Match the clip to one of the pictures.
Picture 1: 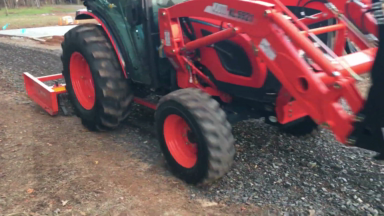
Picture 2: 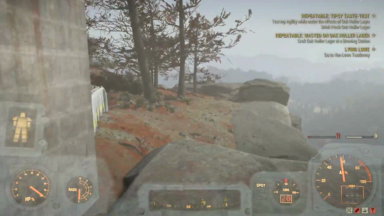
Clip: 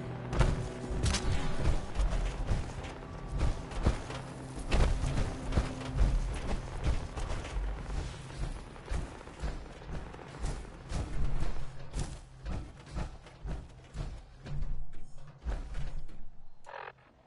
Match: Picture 2